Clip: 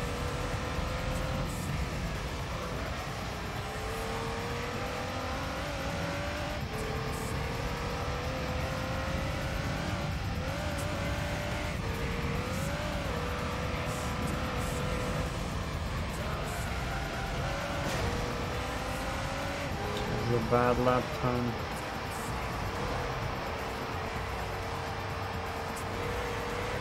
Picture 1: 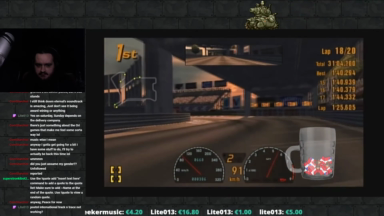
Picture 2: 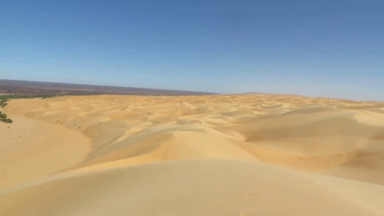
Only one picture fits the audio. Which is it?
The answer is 1